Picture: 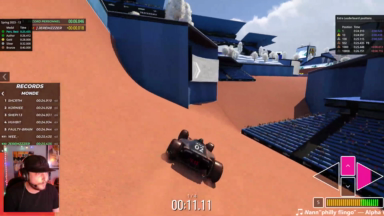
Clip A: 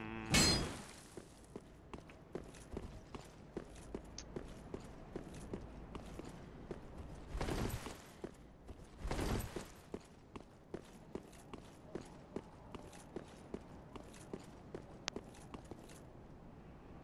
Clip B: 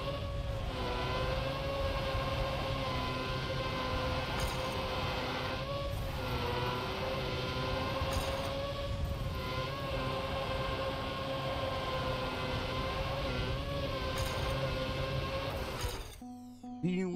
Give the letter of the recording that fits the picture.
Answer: B